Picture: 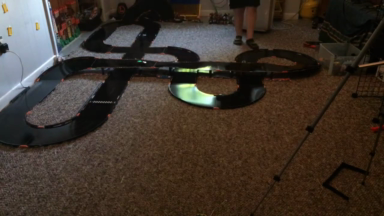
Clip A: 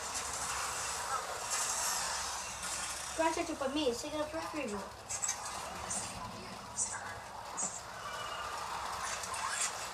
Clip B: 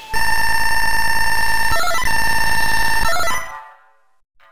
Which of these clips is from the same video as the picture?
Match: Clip A